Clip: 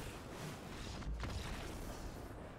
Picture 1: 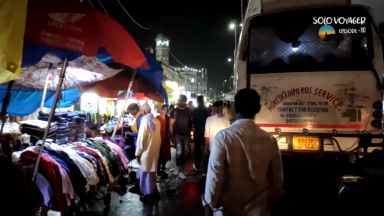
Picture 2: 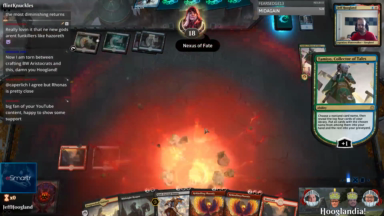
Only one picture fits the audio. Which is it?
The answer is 2